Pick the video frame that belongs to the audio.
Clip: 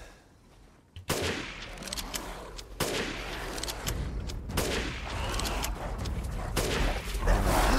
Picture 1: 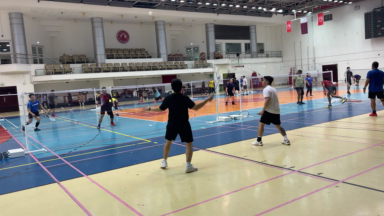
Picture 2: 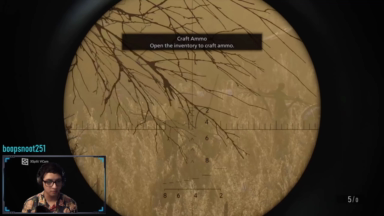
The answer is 2